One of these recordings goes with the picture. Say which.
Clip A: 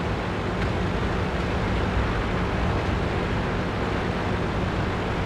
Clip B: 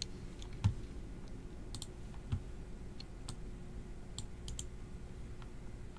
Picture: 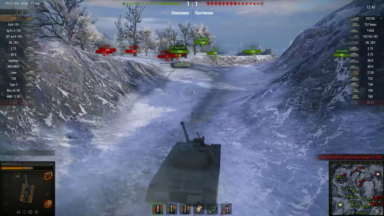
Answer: A